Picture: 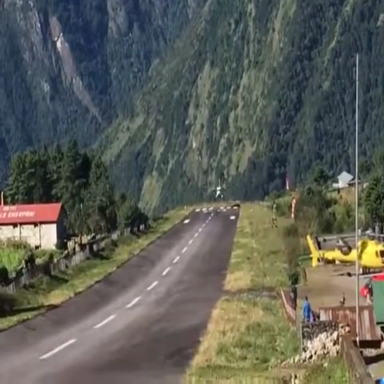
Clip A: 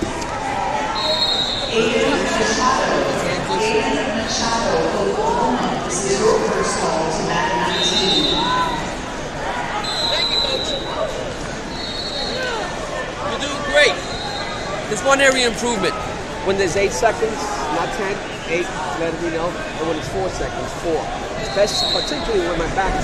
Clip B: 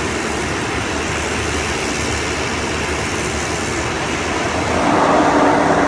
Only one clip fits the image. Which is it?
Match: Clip B